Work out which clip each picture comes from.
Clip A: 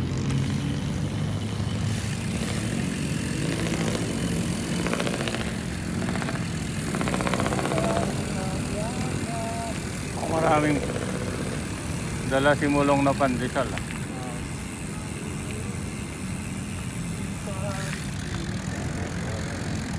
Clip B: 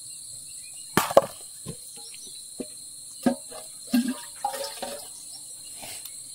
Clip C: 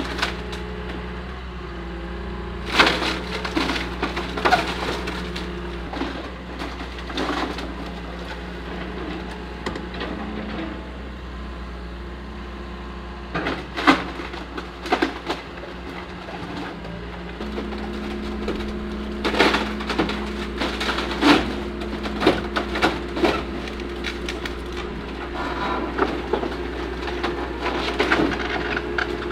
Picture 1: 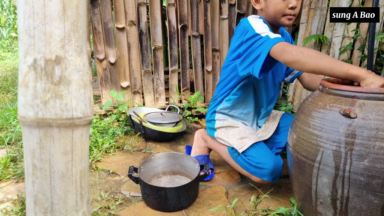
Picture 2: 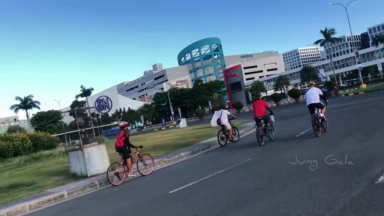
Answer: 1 B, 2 A